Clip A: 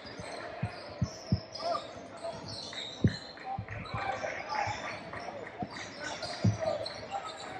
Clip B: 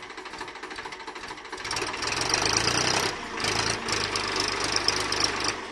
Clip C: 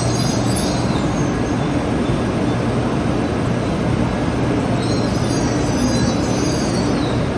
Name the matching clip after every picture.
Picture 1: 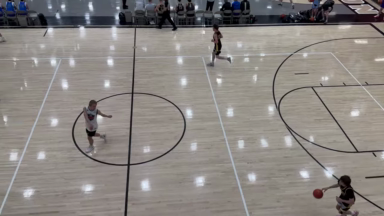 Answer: A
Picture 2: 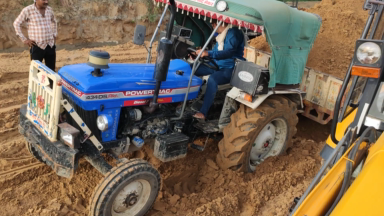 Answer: B